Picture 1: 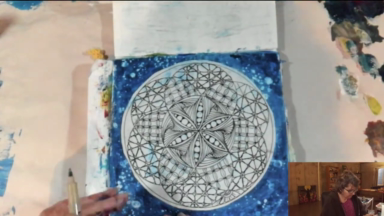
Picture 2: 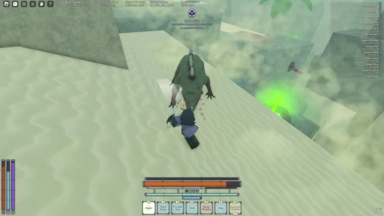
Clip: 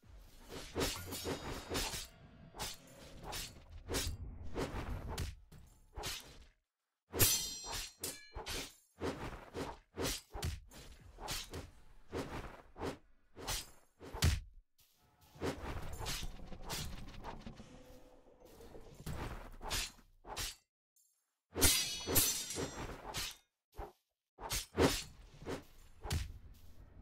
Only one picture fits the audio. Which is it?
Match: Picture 2